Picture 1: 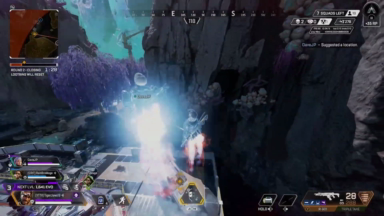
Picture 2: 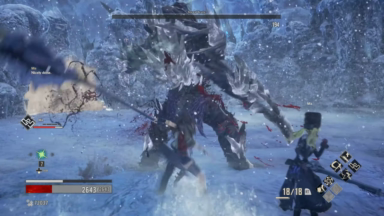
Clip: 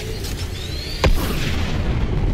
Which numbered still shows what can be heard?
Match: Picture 1